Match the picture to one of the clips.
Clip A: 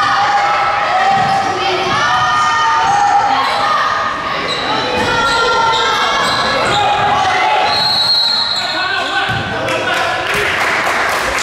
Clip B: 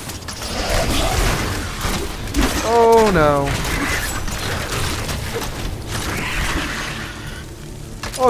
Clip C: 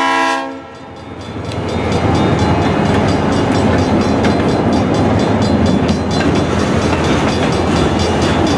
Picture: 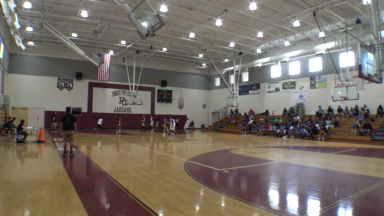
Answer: A